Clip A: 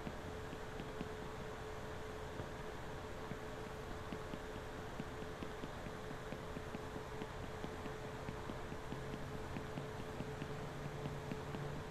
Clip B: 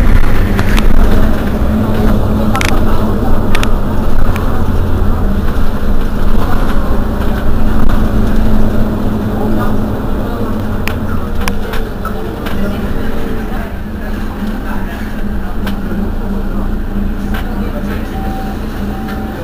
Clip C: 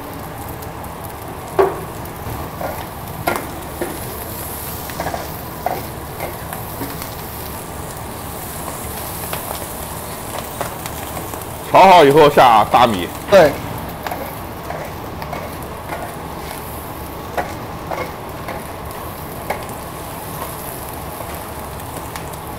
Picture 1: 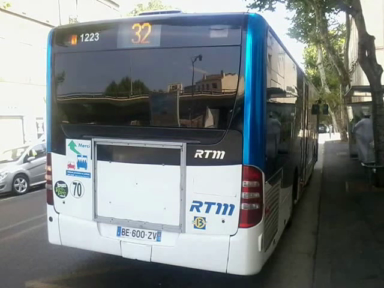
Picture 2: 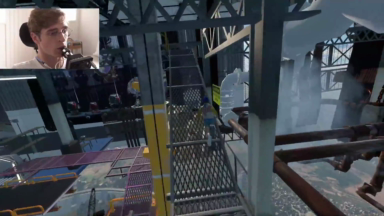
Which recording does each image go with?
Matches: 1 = B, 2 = A